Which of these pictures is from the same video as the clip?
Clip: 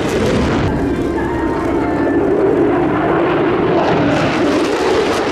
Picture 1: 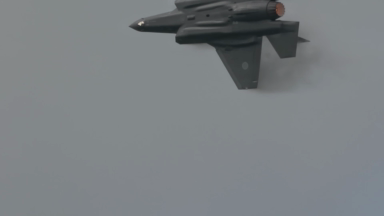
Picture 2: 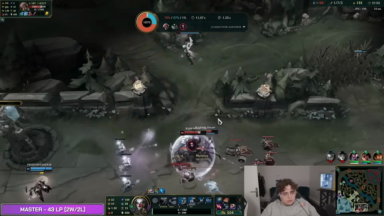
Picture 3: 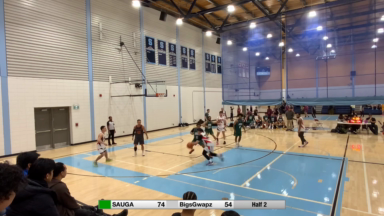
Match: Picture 1